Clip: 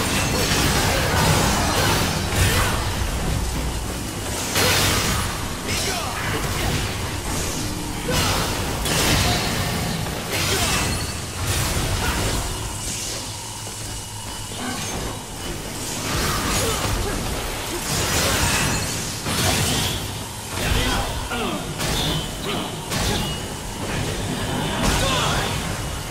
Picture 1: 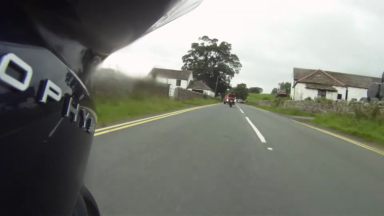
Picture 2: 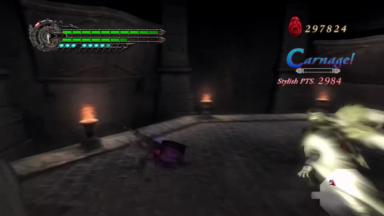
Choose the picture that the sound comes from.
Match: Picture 2